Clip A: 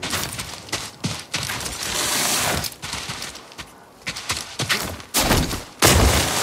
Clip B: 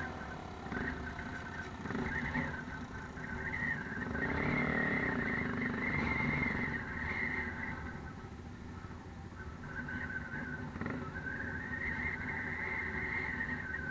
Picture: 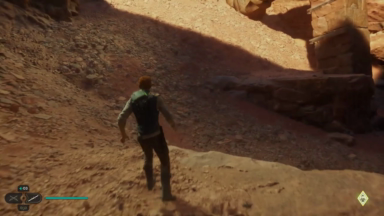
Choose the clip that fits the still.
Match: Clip A